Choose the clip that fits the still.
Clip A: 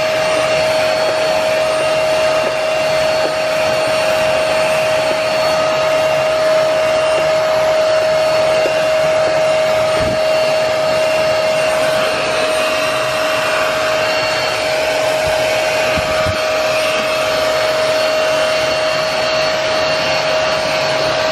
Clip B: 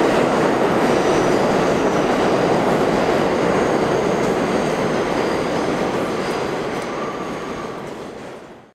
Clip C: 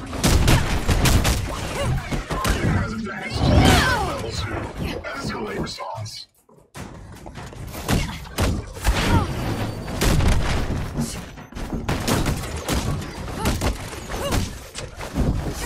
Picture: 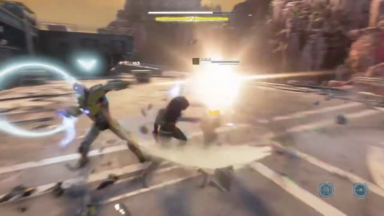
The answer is C